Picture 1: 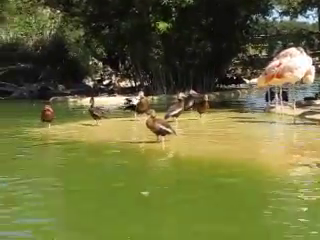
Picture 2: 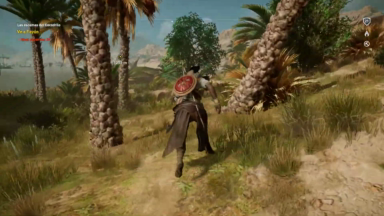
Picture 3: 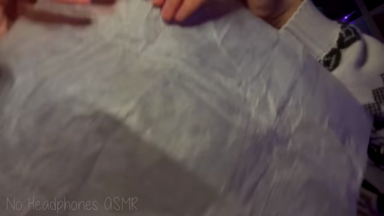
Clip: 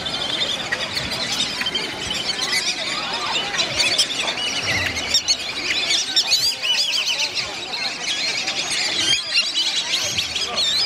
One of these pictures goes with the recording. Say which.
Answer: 1